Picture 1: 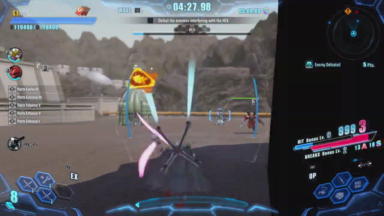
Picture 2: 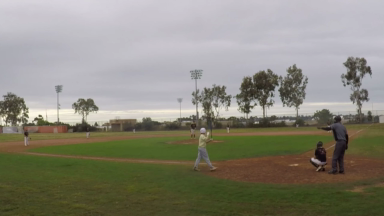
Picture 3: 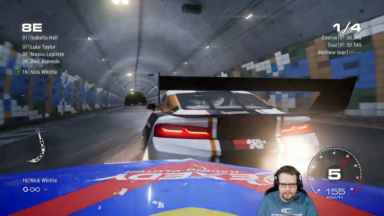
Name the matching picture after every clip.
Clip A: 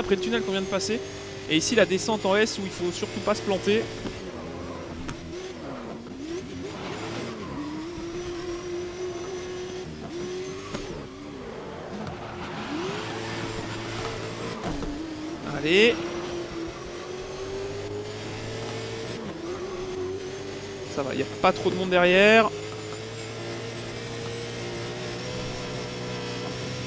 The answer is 3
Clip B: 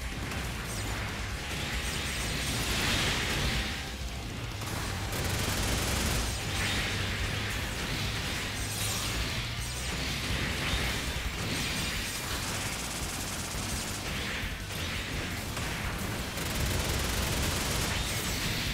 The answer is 1